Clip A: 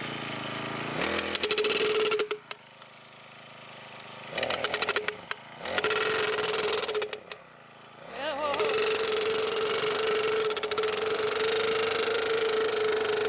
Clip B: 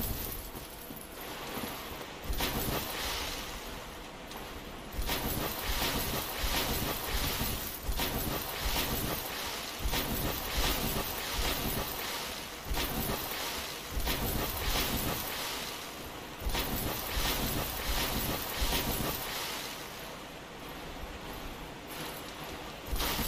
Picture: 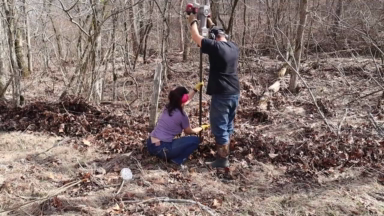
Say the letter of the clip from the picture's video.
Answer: A